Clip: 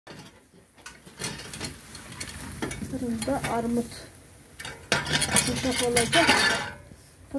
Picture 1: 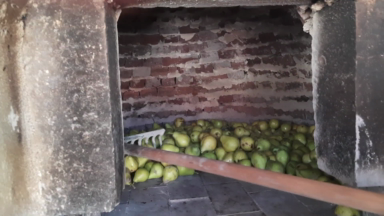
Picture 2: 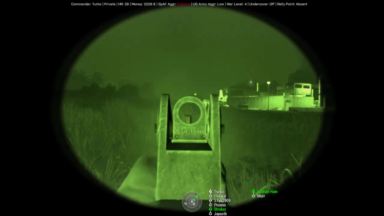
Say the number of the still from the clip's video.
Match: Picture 1